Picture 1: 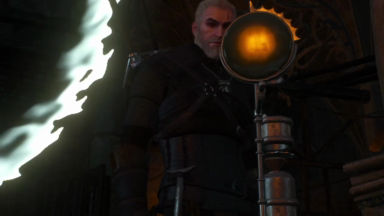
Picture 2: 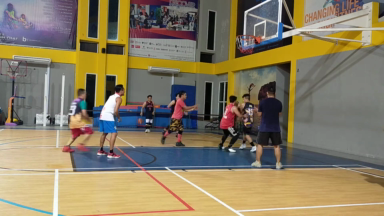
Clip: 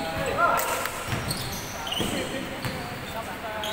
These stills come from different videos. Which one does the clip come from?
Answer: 2